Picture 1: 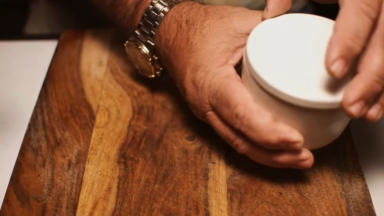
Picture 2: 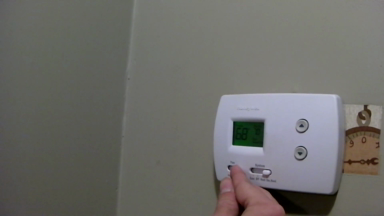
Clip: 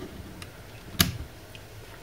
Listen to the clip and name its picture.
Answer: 2